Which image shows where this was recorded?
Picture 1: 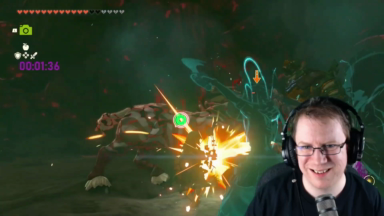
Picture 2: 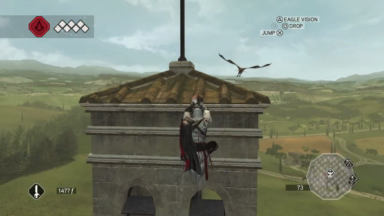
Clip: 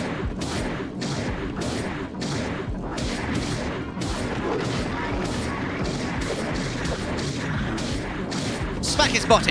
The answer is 1